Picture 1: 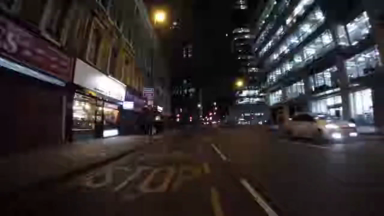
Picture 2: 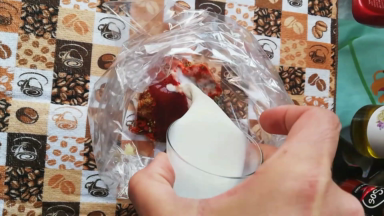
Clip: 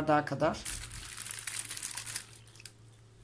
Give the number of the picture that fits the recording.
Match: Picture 2